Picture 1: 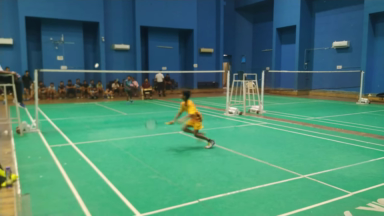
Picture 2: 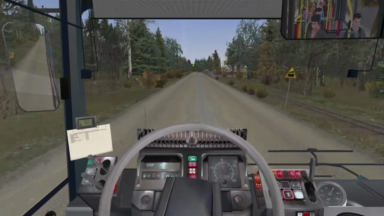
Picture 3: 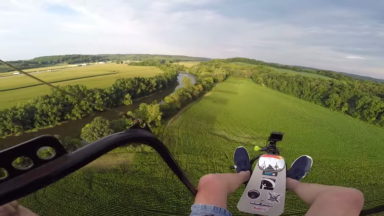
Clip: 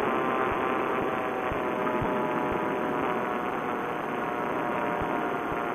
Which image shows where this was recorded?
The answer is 3